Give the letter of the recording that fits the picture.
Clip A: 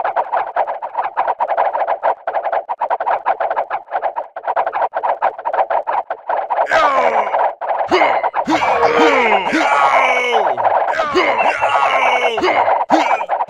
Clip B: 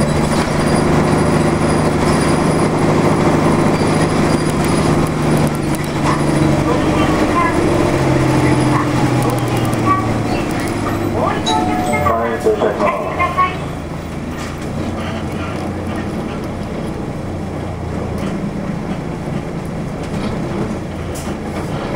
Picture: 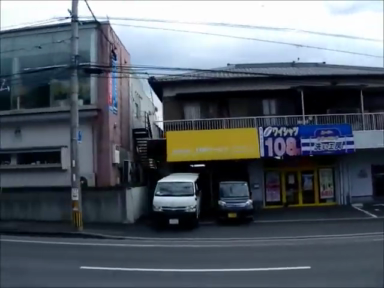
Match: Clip B